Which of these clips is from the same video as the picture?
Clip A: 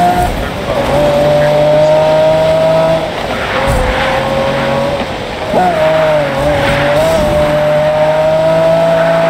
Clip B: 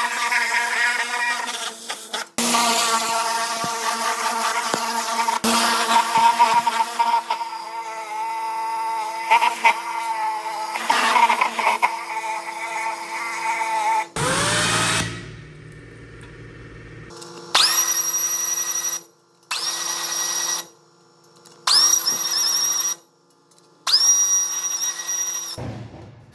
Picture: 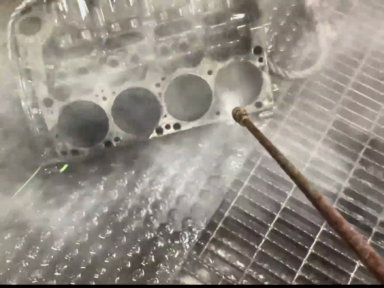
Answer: B